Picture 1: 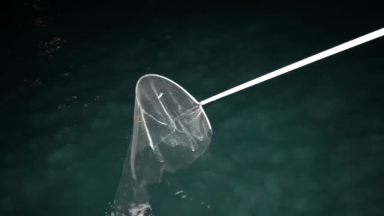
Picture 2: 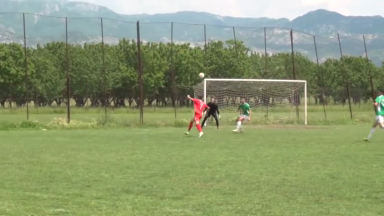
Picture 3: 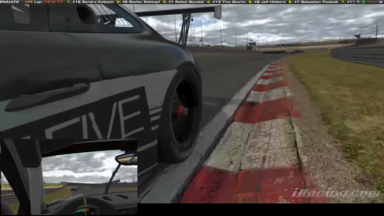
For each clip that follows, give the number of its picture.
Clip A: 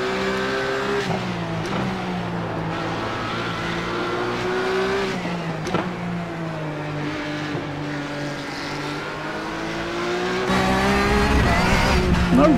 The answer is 3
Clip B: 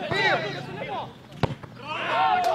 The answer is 2